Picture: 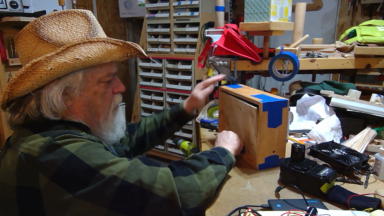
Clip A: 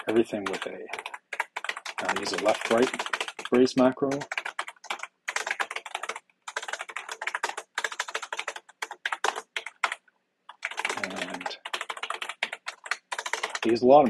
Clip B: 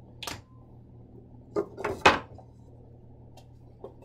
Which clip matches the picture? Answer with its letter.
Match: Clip B